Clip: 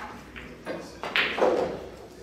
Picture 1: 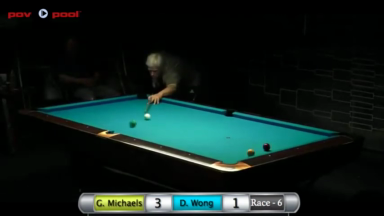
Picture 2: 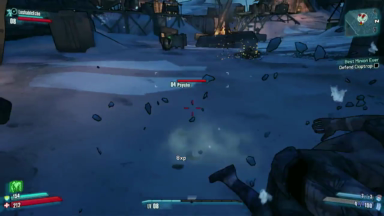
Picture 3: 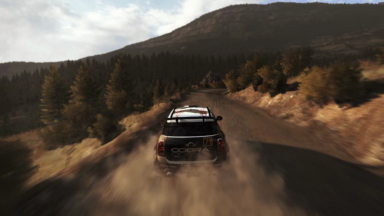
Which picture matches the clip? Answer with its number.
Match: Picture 1